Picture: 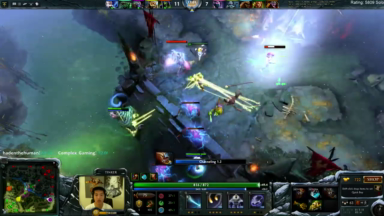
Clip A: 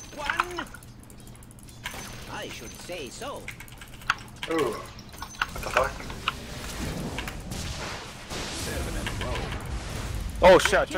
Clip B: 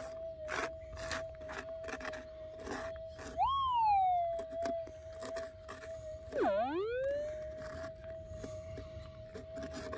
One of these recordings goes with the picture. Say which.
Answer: A